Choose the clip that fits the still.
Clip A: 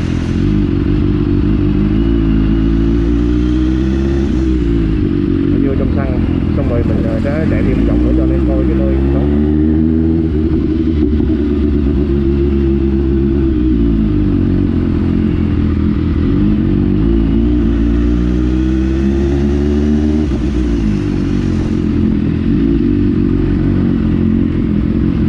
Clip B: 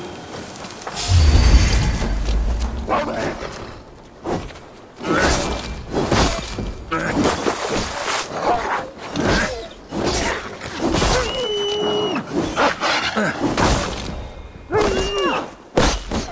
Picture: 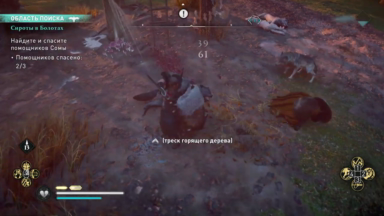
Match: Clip B